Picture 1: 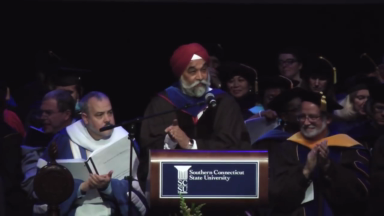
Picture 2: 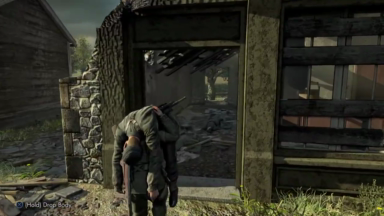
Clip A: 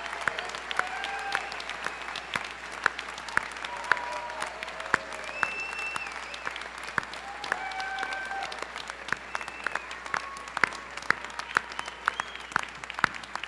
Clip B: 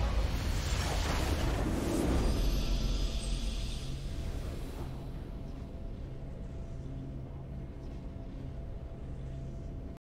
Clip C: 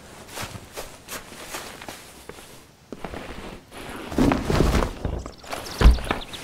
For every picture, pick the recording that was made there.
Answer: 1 A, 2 C